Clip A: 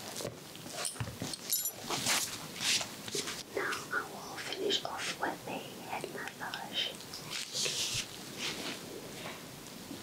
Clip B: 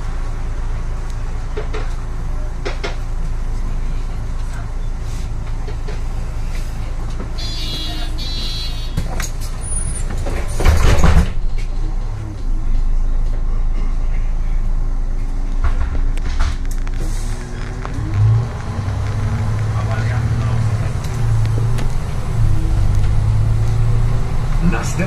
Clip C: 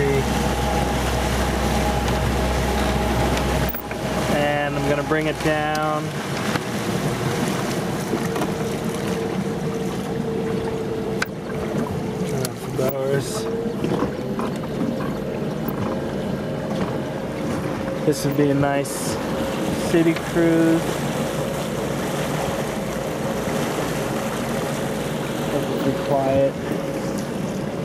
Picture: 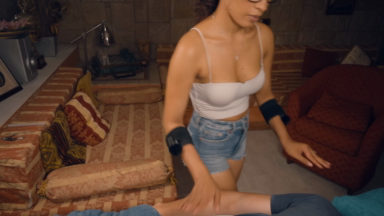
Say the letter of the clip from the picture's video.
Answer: A